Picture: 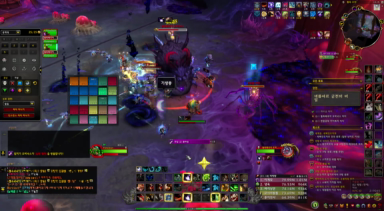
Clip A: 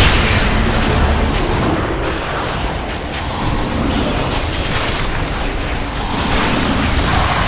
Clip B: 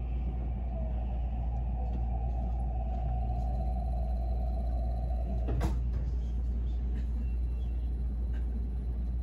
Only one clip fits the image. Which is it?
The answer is A